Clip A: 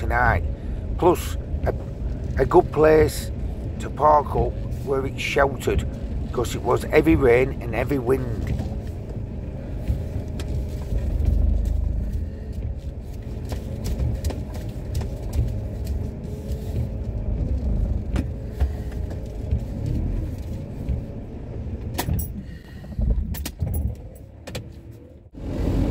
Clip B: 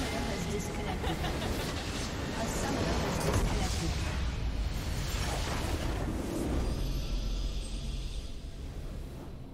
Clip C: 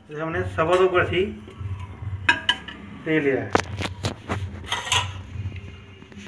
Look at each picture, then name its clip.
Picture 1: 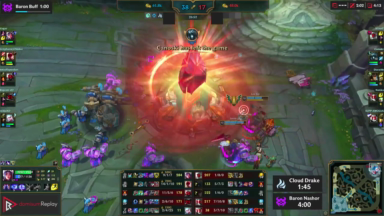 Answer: B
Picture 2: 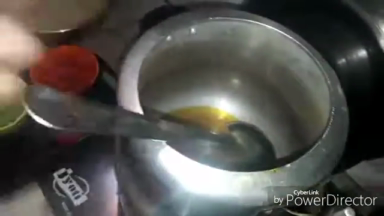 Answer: C